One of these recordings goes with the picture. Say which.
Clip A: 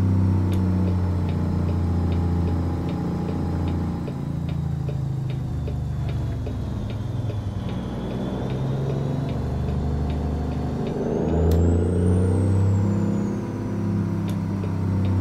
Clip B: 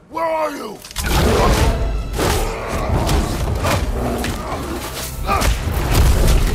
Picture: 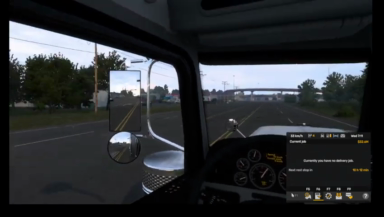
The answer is A